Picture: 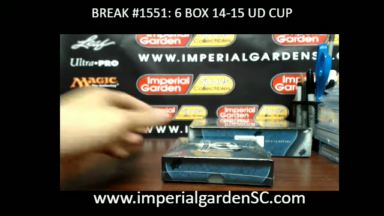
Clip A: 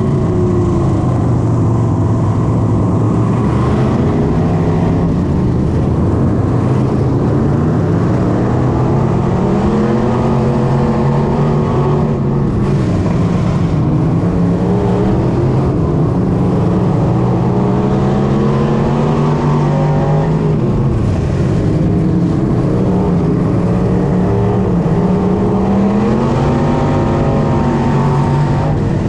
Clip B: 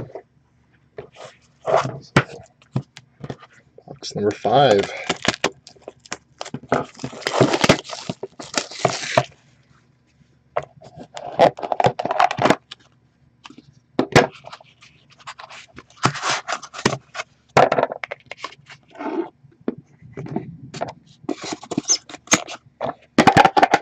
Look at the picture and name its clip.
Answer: B